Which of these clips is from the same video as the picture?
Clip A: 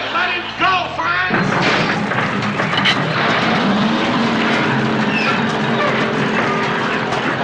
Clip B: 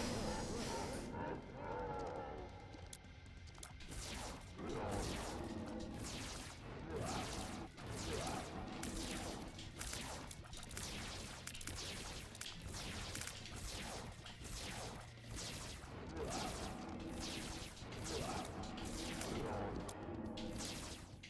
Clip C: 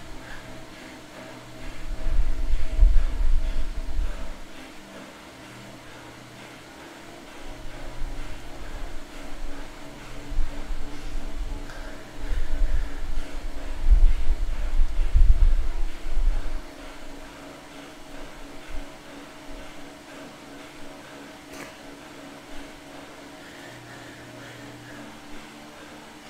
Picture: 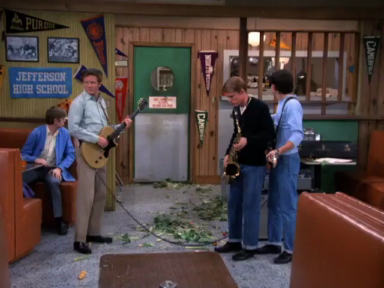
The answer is A